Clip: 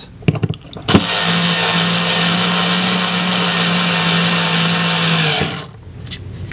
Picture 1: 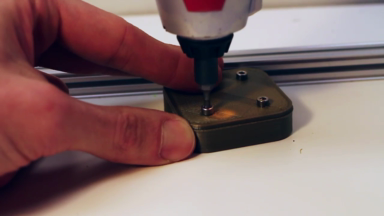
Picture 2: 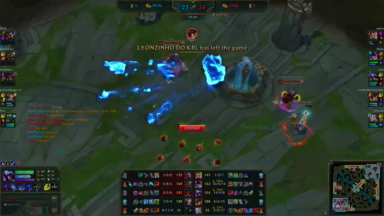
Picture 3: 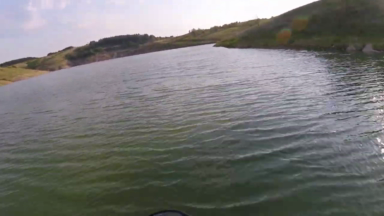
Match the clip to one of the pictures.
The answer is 1